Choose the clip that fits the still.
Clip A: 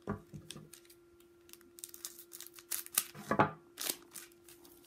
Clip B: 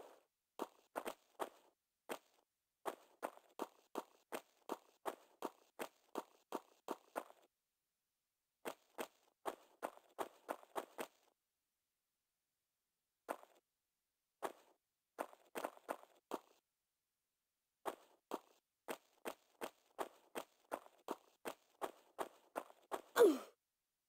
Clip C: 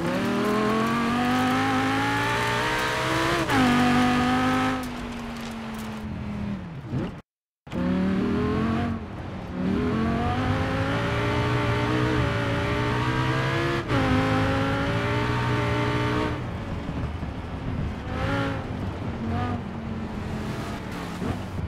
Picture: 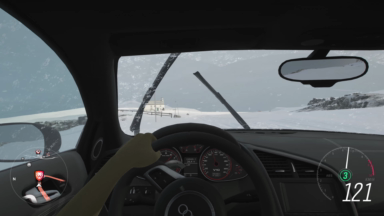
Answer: C